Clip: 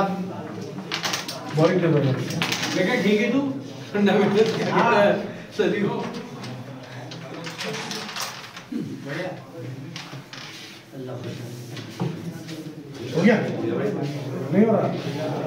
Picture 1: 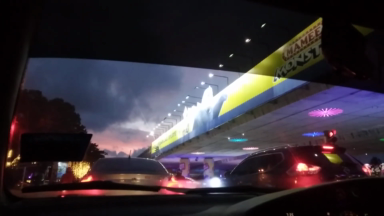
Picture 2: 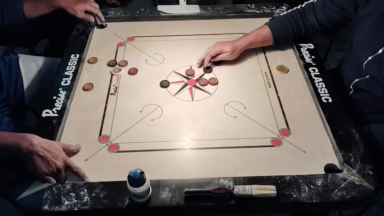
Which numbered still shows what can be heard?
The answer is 2